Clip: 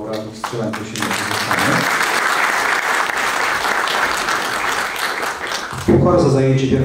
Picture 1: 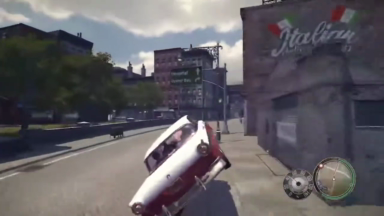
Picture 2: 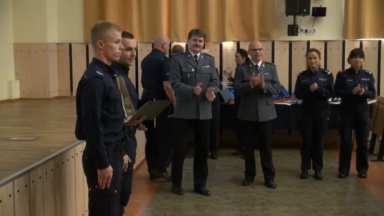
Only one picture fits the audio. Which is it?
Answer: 2